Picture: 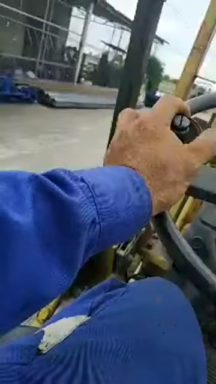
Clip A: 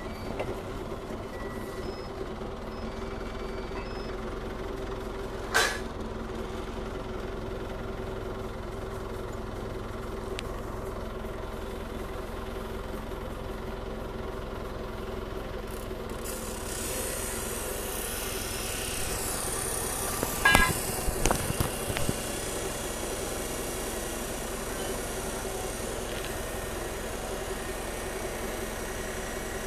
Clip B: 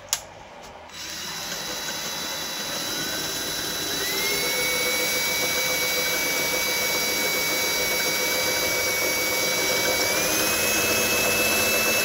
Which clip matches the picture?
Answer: A